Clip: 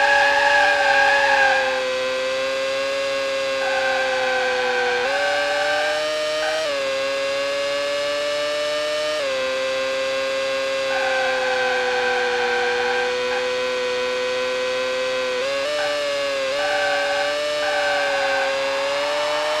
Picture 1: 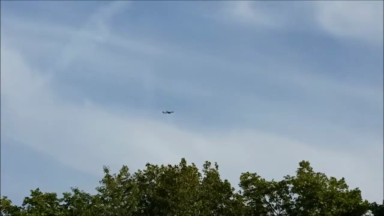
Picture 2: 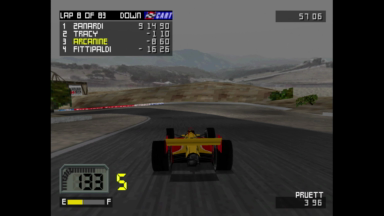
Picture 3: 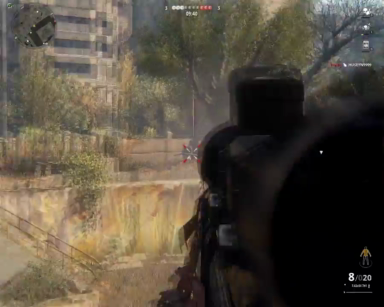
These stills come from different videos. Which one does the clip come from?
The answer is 2